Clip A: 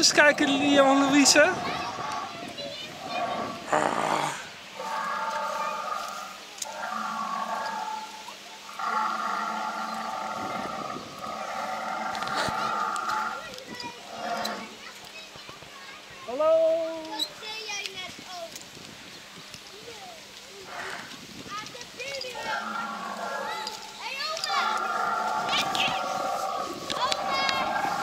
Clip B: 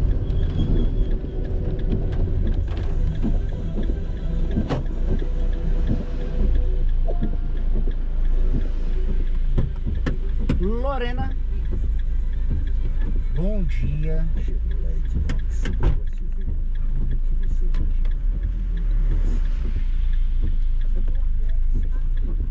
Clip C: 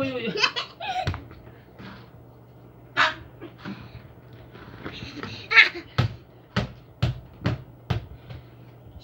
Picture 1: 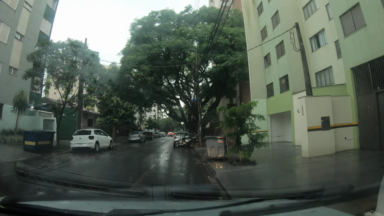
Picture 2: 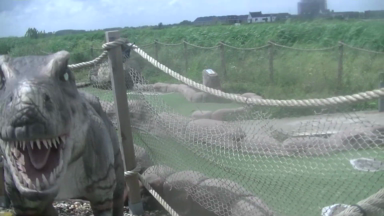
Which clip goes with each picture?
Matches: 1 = B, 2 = A